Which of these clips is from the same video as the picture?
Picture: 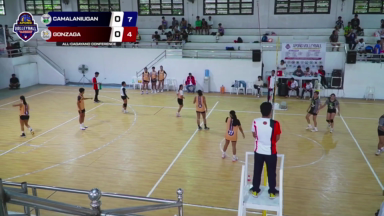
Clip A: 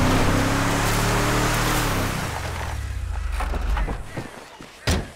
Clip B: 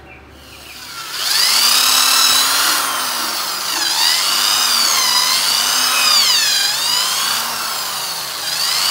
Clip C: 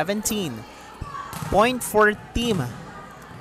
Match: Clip C